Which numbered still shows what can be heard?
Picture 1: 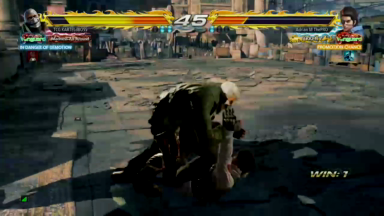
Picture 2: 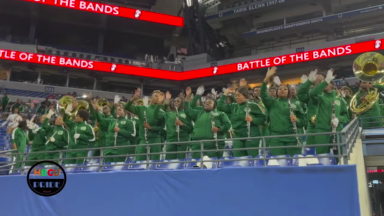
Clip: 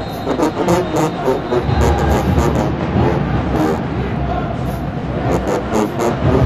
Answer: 2